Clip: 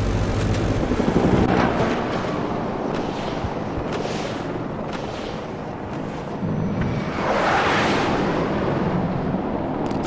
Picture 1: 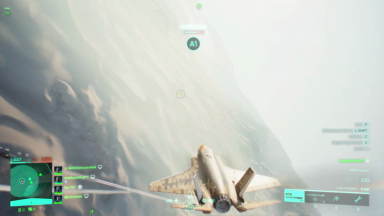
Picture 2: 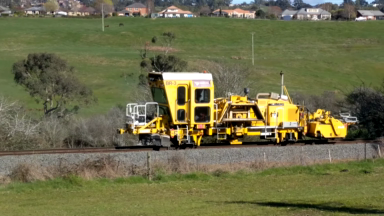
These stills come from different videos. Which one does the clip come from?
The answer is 1